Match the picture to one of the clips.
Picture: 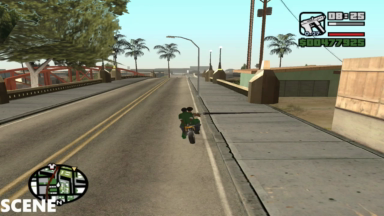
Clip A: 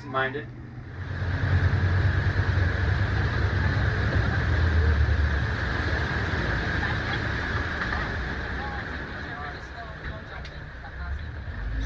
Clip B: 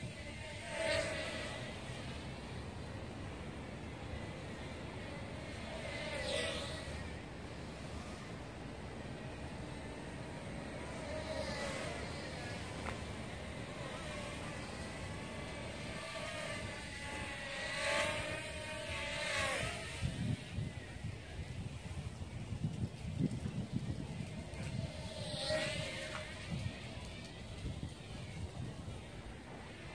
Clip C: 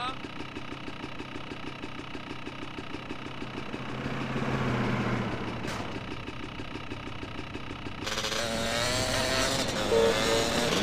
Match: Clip C